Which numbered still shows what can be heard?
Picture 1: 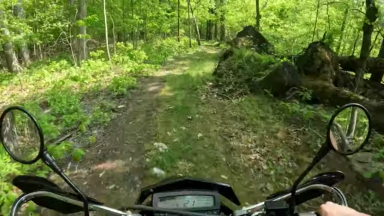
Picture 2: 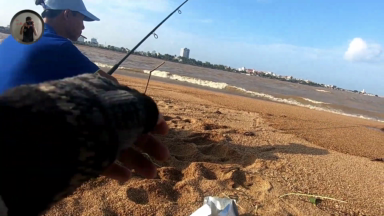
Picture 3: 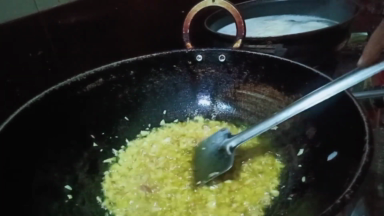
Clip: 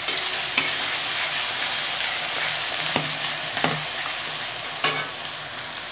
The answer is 3